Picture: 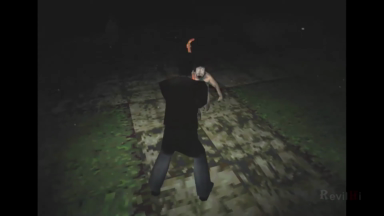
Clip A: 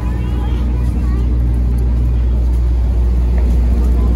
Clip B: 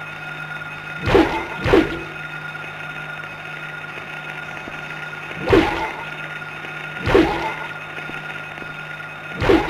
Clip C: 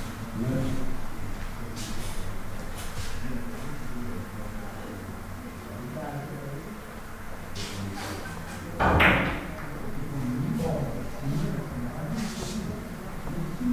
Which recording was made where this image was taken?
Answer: B